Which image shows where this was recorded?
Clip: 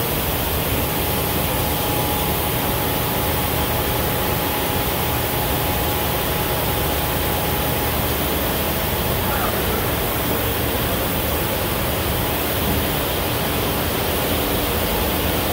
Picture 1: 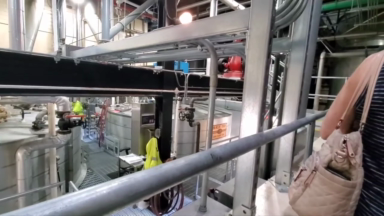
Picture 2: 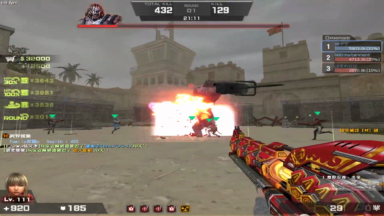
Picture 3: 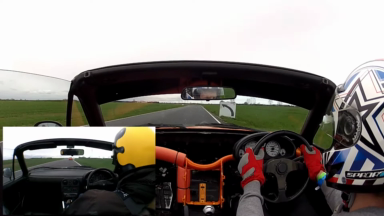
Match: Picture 1